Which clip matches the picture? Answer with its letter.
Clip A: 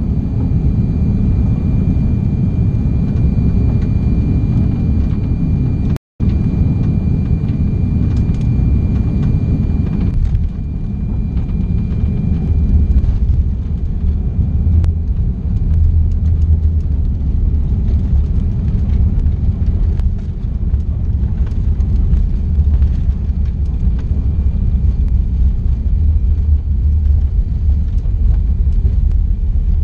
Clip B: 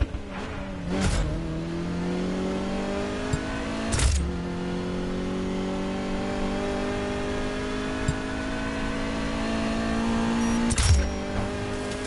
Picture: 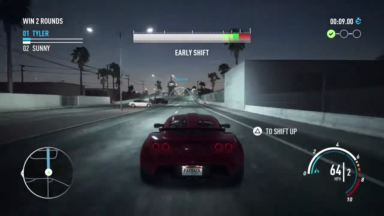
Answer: B